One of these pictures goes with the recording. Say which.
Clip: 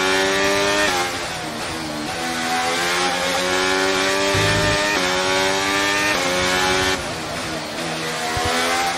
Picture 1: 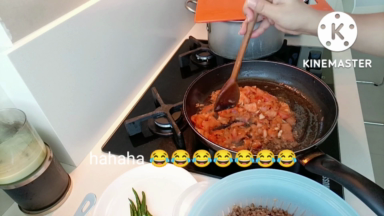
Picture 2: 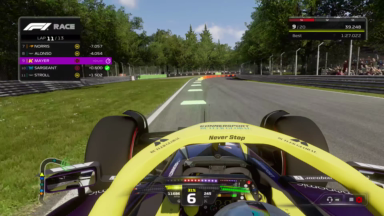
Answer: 2